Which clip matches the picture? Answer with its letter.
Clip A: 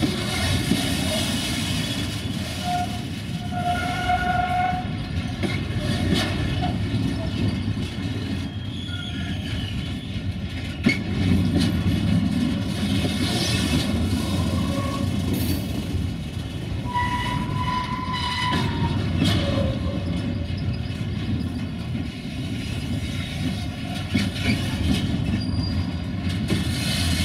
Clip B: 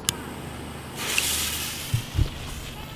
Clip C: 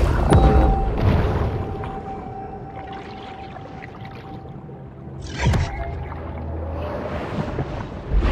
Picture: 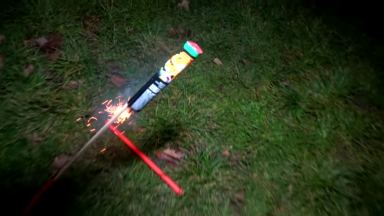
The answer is B